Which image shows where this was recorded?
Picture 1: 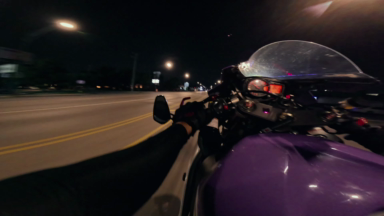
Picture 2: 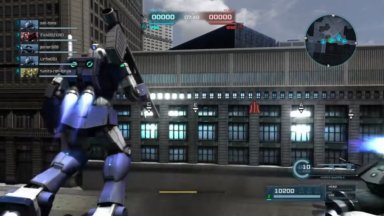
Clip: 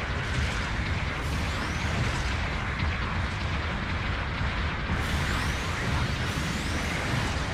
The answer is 2